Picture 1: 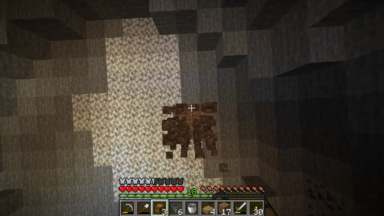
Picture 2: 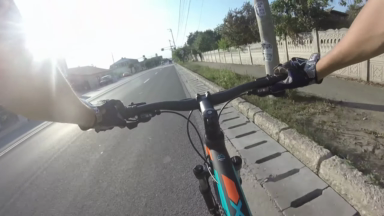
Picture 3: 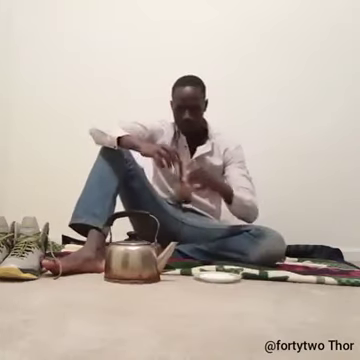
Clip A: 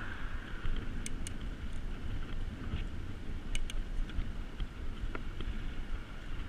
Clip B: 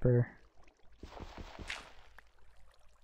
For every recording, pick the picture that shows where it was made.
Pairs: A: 2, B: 1